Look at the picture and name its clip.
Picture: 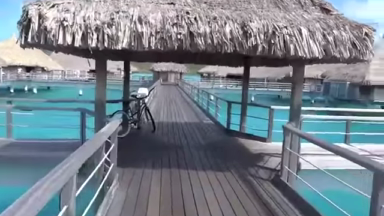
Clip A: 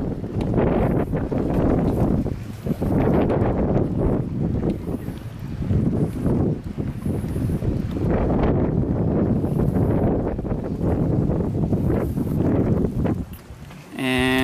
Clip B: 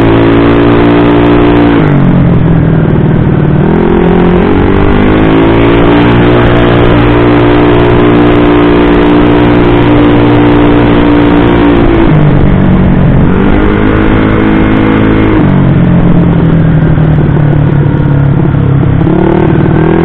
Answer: A